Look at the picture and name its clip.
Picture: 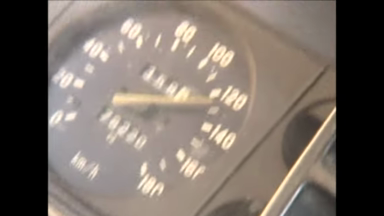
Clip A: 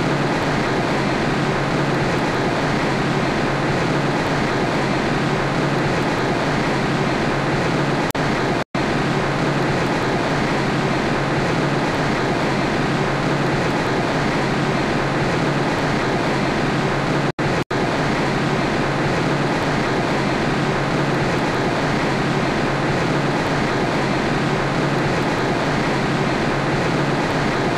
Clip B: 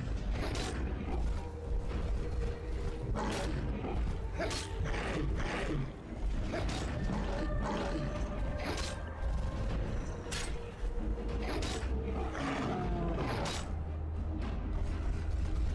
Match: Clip A